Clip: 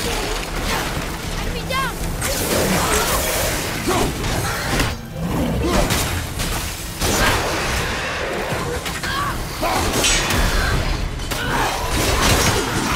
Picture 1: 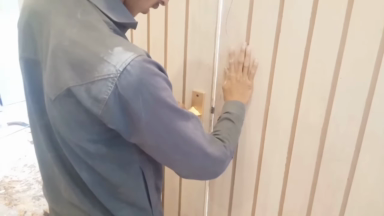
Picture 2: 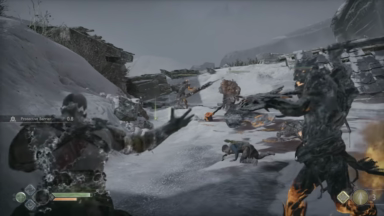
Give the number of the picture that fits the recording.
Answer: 2